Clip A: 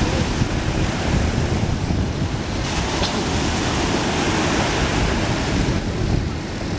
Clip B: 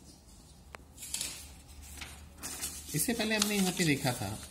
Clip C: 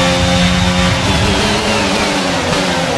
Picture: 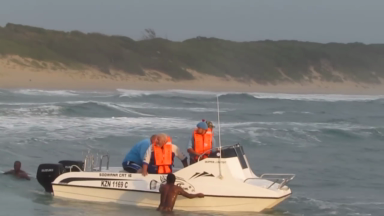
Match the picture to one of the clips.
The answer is A